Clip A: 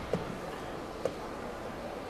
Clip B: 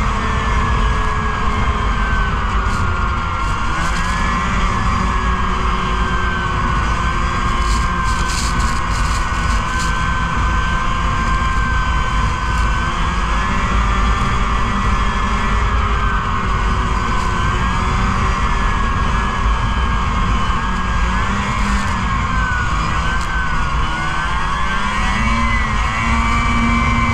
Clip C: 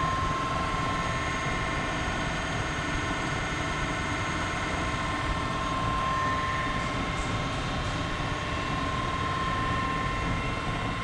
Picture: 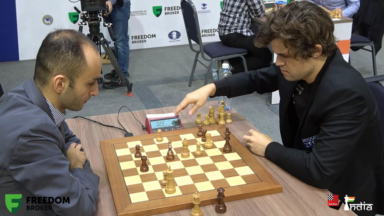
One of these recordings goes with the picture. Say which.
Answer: A